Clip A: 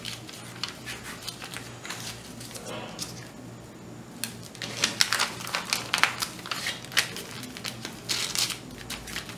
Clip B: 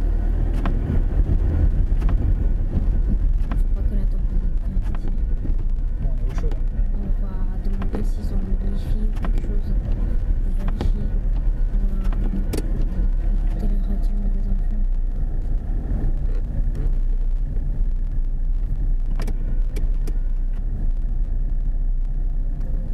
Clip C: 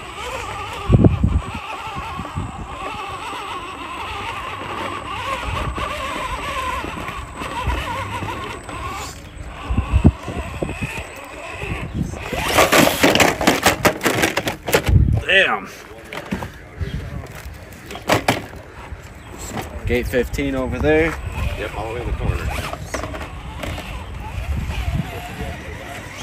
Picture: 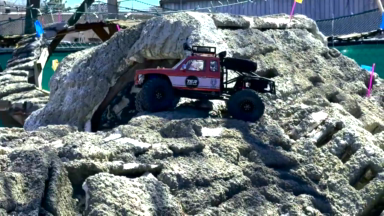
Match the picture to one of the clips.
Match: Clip C